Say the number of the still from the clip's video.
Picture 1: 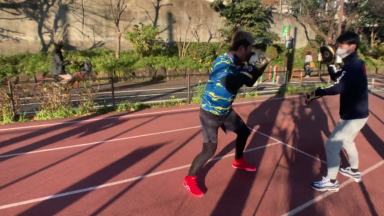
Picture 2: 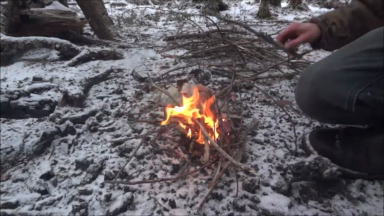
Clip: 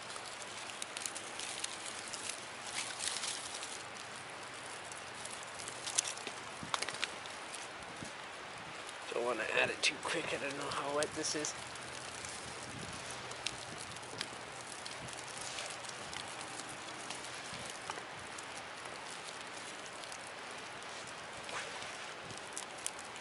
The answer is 2